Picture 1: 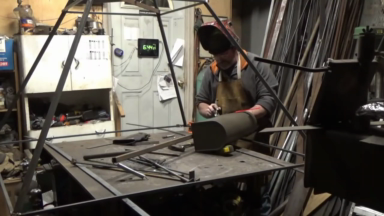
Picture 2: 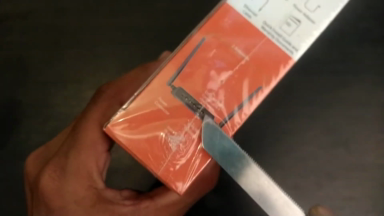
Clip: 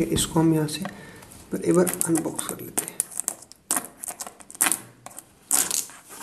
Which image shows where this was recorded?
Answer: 2